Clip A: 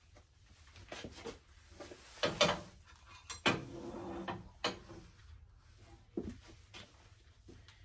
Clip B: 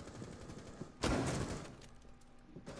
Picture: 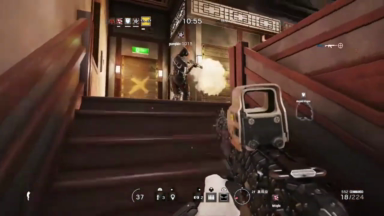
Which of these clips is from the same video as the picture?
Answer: B